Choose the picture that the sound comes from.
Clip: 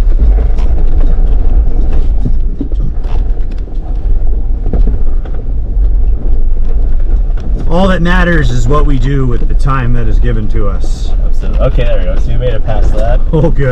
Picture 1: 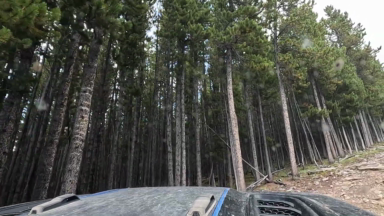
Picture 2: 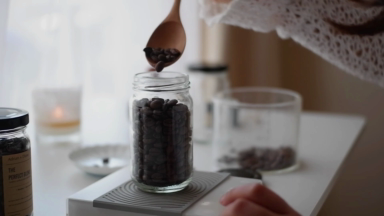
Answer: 1